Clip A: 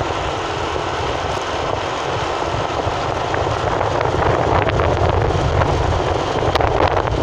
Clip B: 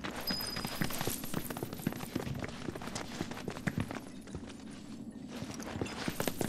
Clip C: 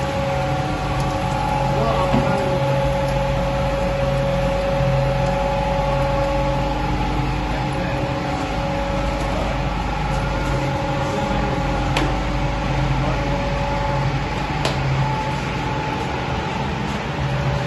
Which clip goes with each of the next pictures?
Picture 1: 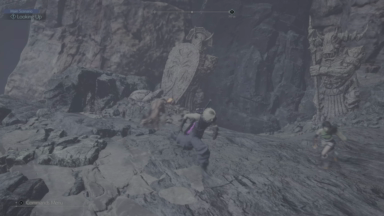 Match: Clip B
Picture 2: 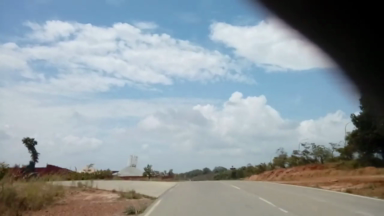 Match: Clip A